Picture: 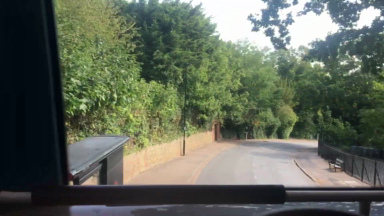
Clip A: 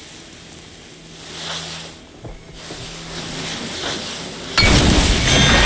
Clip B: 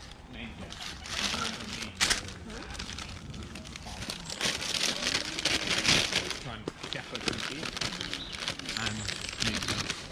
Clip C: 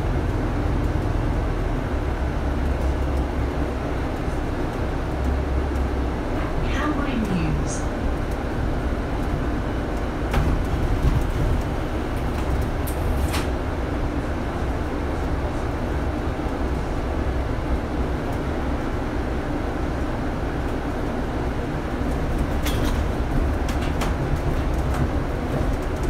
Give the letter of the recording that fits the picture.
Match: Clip C